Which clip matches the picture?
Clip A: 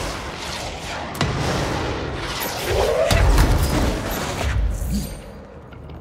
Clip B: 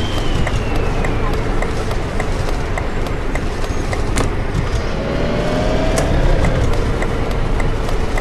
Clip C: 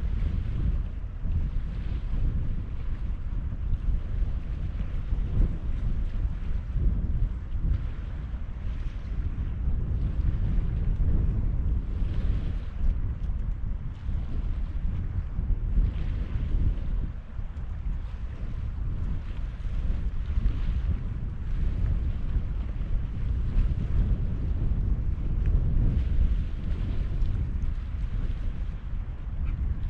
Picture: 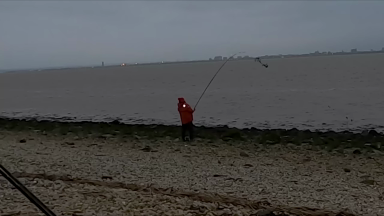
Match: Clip C